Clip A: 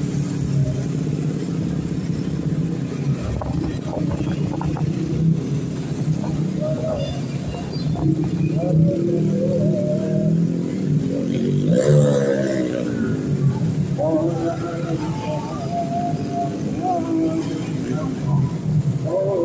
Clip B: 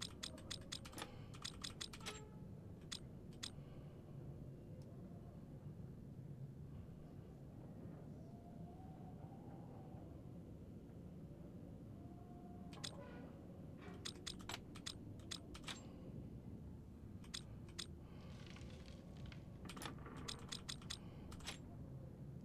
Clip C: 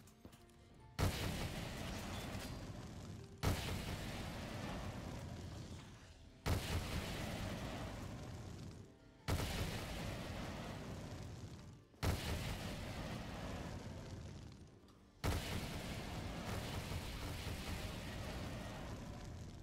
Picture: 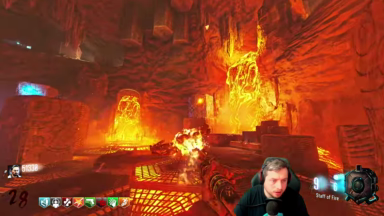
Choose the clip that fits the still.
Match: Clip C